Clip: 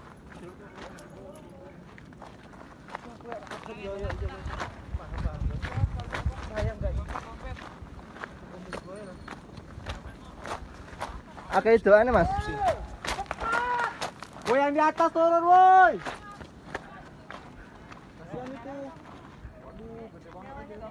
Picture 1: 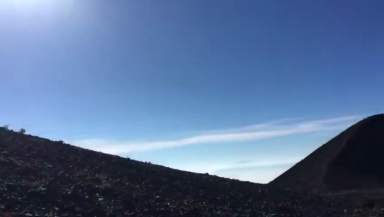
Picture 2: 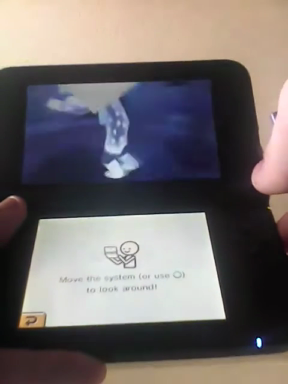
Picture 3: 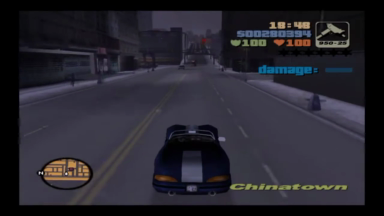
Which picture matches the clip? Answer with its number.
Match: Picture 1